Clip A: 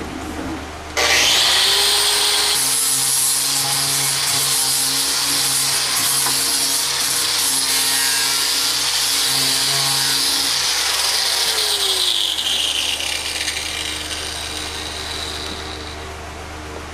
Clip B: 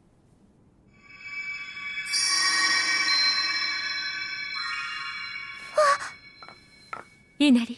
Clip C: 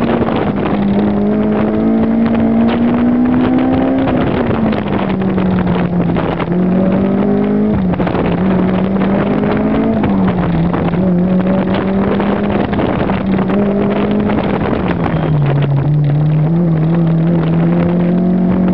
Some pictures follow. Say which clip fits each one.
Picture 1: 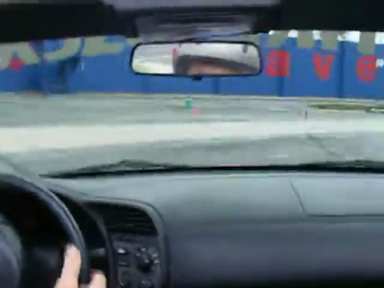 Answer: C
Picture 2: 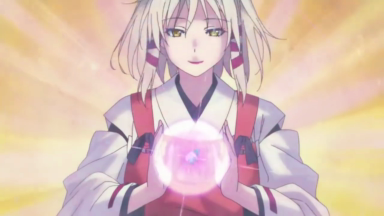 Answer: B